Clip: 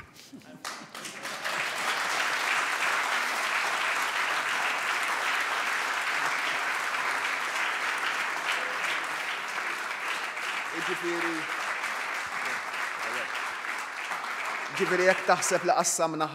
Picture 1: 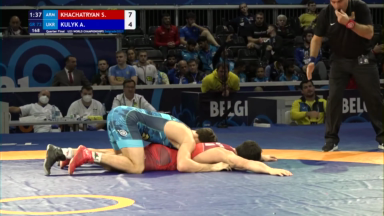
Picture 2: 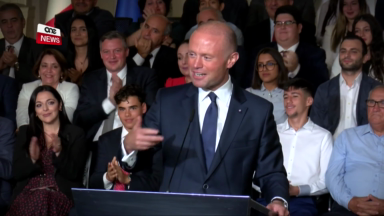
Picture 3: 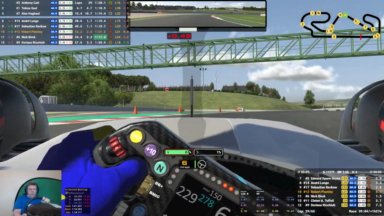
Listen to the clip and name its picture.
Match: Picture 2